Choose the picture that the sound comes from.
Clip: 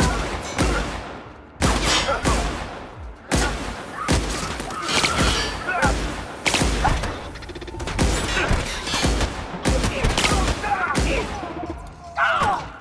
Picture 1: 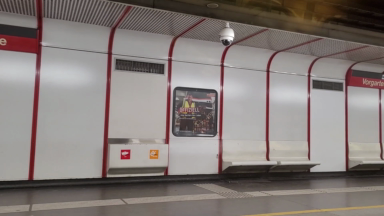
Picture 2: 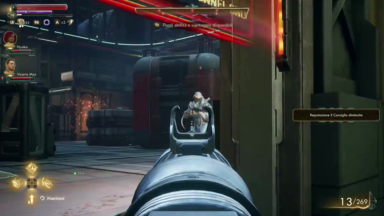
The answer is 2